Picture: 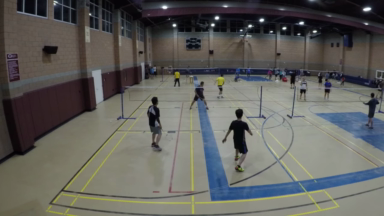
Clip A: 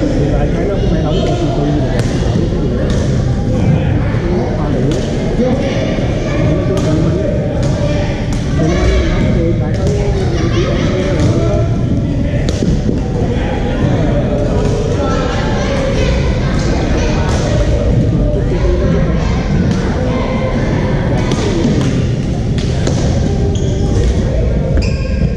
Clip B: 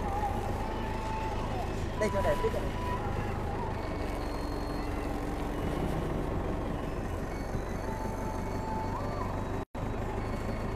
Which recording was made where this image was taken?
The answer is A